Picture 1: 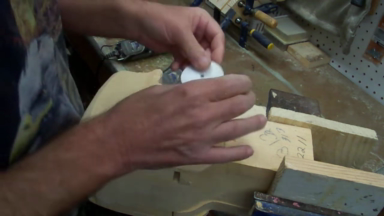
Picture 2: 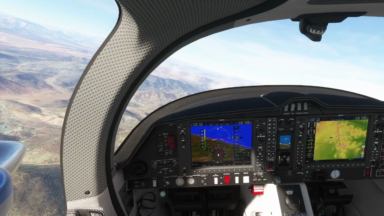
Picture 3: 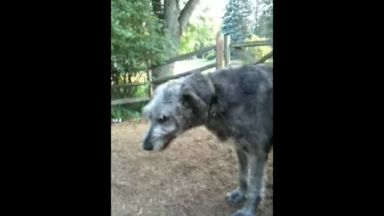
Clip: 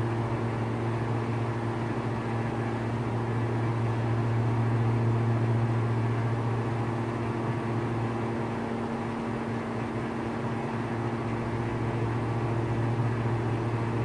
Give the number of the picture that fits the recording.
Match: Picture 2